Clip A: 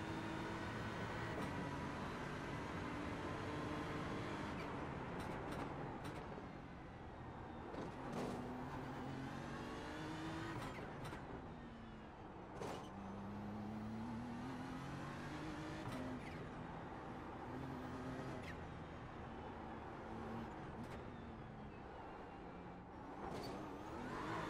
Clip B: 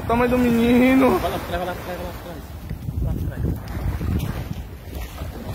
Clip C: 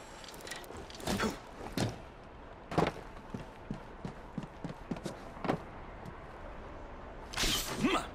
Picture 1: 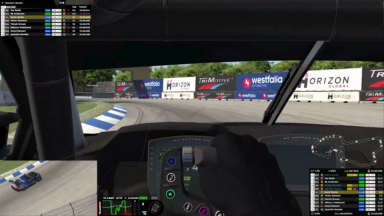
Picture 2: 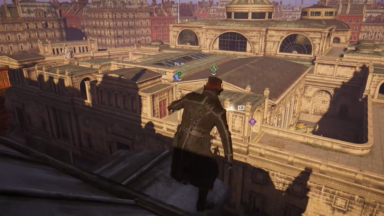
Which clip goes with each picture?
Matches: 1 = A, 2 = C